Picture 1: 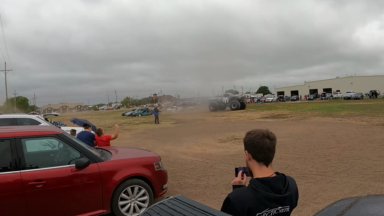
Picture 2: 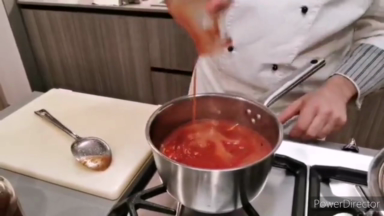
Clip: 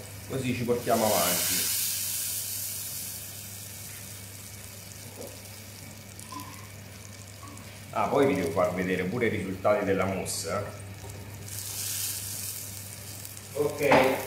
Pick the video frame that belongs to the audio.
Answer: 2